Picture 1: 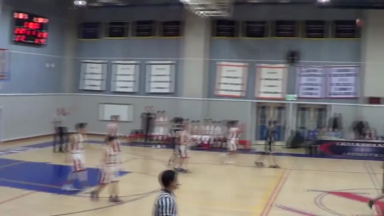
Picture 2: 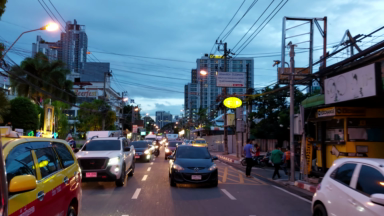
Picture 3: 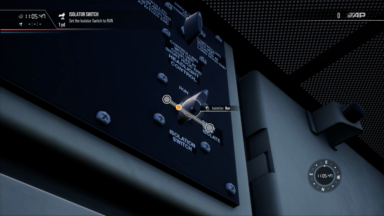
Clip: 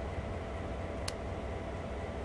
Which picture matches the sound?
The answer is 3